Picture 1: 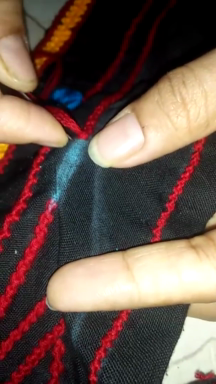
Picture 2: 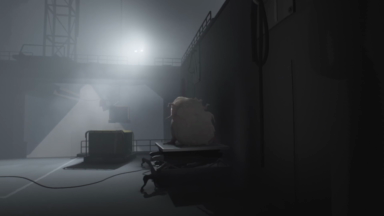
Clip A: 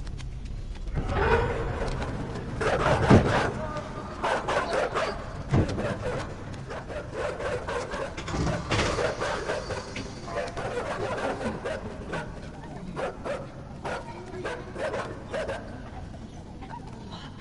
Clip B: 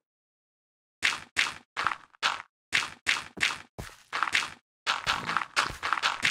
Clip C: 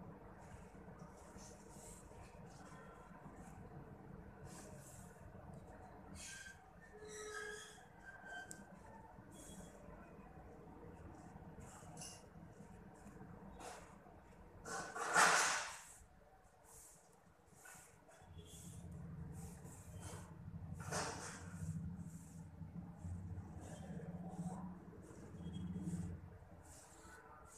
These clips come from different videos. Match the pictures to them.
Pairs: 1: C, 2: A